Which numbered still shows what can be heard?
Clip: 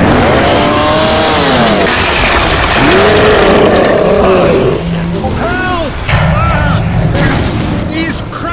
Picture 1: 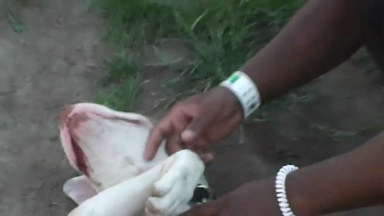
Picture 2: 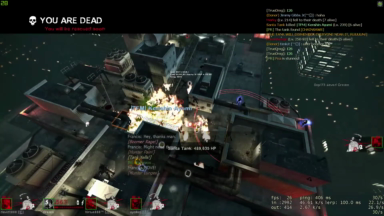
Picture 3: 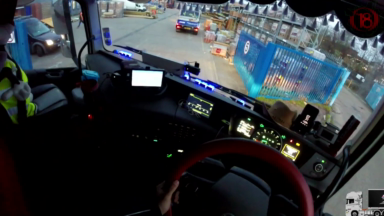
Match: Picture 2